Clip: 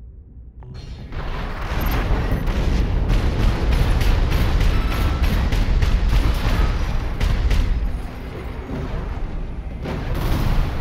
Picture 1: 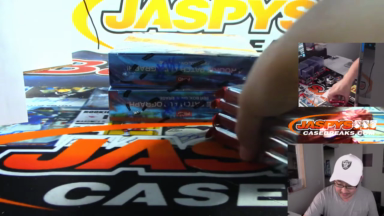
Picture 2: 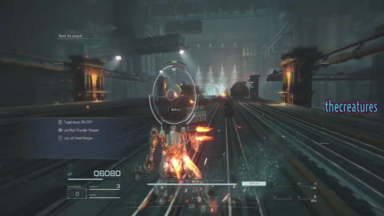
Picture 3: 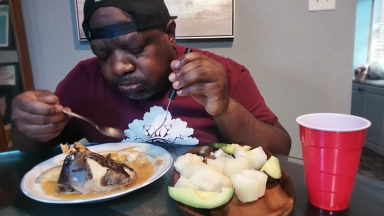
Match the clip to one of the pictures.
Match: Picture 2